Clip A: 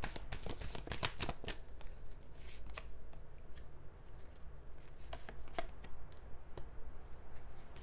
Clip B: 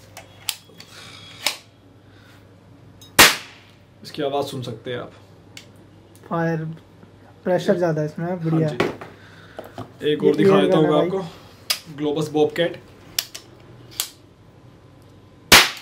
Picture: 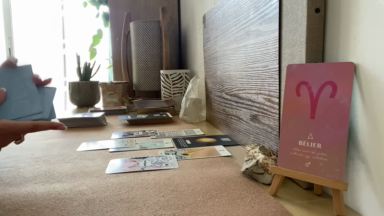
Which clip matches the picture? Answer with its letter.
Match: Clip A